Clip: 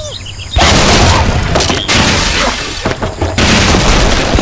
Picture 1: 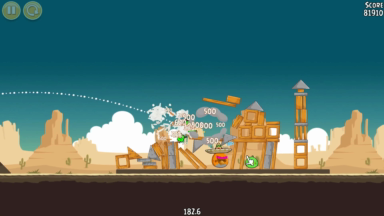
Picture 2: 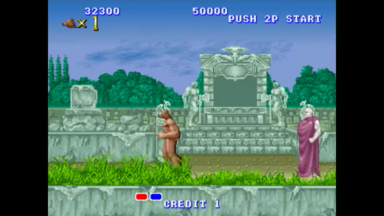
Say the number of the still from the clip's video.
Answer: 1